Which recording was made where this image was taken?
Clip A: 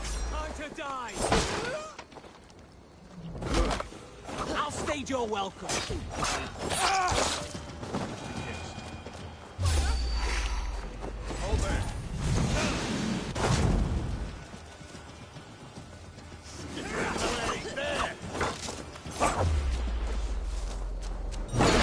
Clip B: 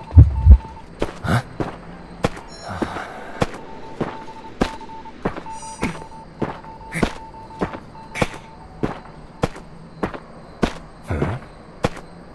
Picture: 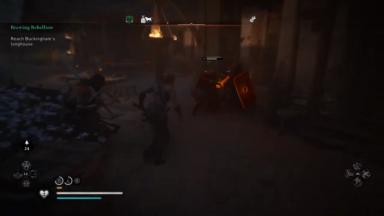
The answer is A